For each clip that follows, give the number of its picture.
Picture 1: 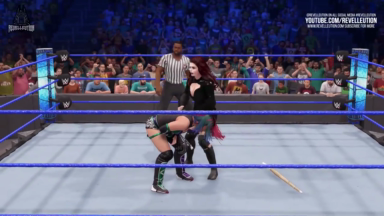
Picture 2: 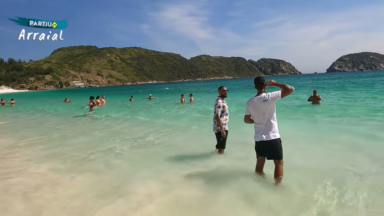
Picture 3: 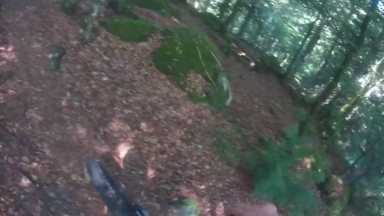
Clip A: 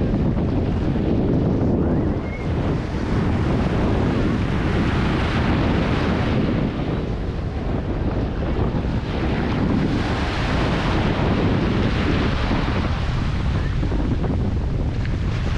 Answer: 2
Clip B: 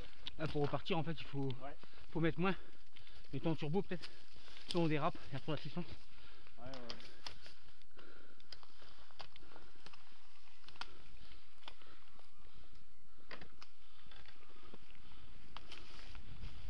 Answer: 3